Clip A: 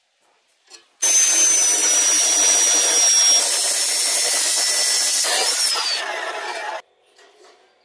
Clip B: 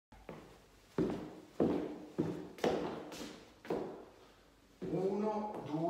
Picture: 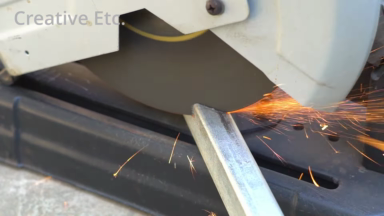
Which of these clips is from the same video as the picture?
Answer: A